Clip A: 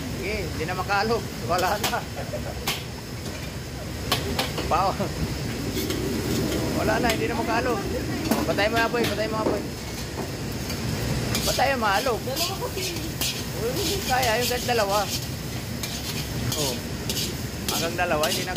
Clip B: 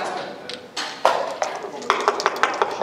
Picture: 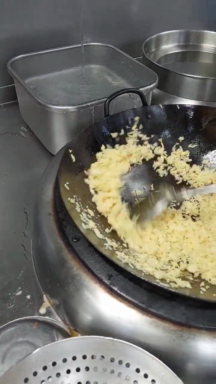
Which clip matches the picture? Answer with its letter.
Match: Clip A